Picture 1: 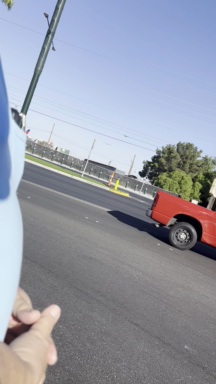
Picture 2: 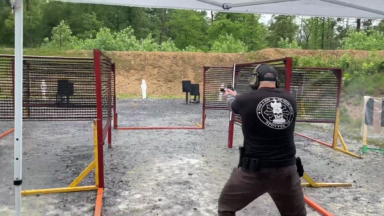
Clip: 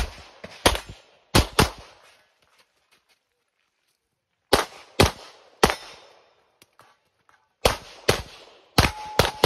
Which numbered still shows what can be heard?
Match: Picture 2